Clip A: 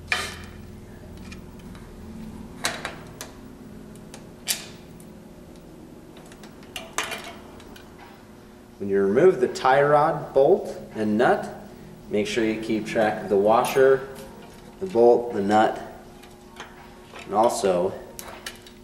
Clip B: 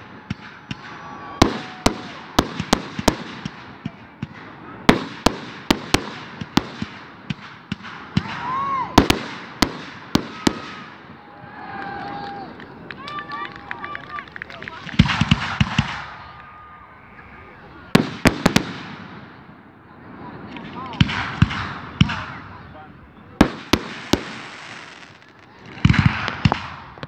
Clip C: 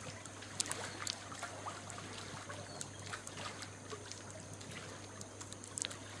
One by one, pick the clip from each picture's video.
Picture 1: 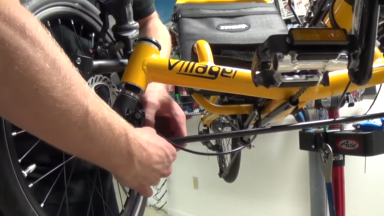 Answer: A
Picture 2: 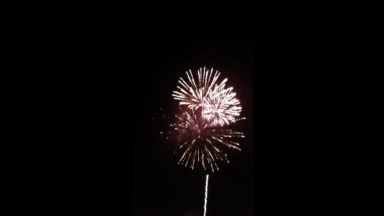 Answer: B